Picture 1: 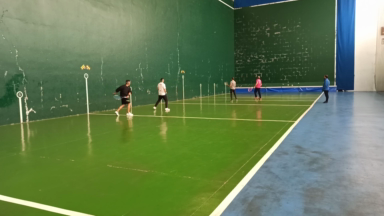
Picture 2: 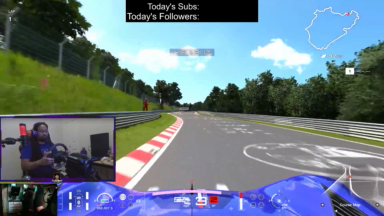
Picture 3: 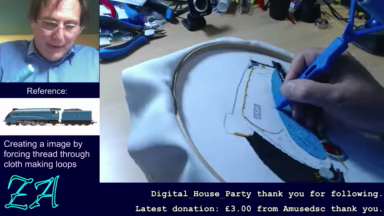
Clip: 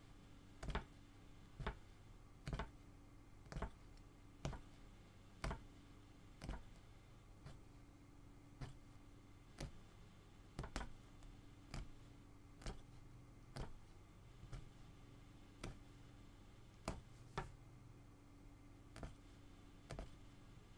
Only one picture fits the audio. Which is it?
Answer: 3